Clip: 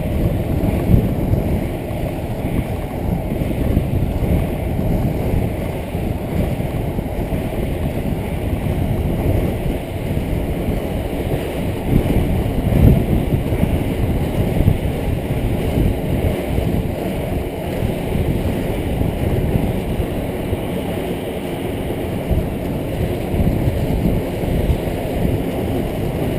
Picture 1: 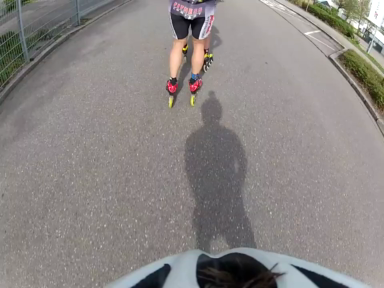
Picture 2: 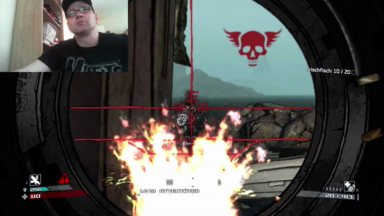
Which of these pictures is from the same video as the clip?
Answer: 1